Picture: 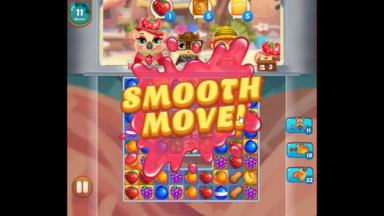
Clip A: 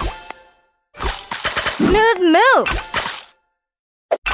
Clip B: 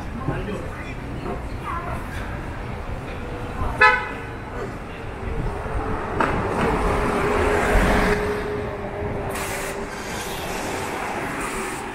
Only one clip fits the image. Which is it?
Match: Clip A